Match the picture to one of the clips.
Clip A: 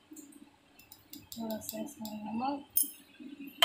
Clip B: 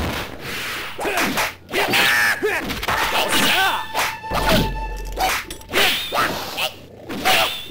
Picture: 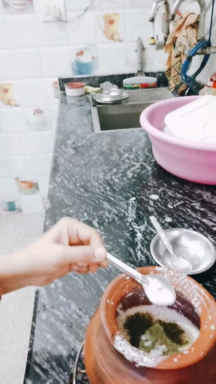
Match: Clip A